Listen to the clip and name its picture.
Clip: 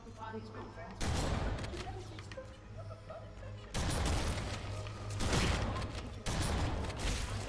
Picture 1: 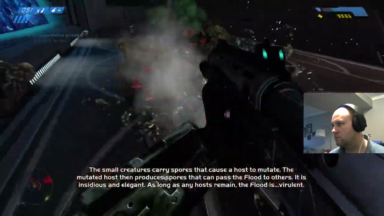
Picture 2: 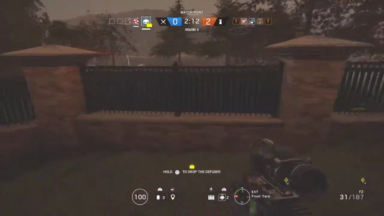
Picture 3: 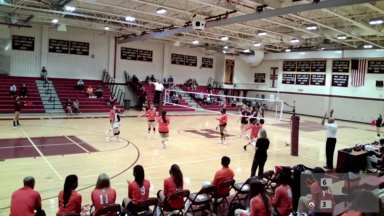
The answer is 1